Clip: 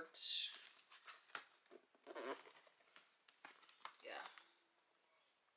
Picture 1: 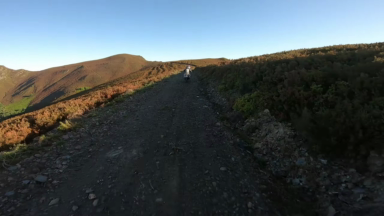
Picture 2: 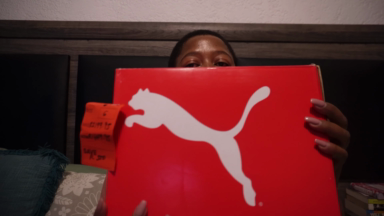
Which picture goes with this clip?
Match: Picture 2